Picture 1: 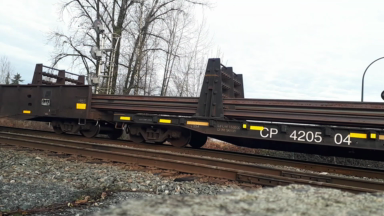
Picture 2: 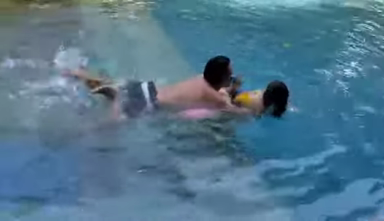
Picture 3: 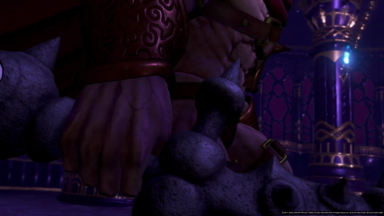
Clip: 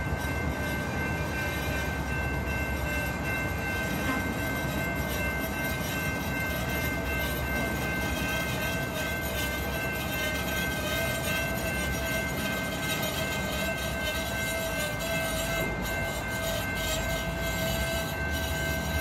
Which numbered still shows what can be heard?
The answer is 1